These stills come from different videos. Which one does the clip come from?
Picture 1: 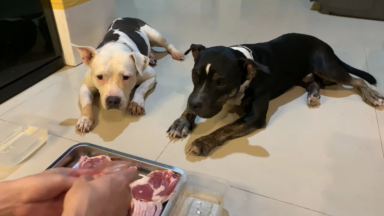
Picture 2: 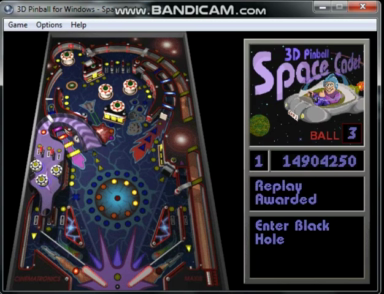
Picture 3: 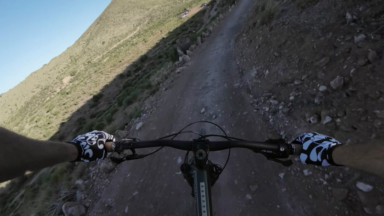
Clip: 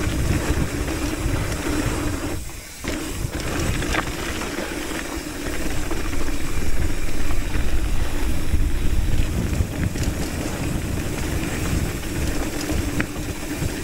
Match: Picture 3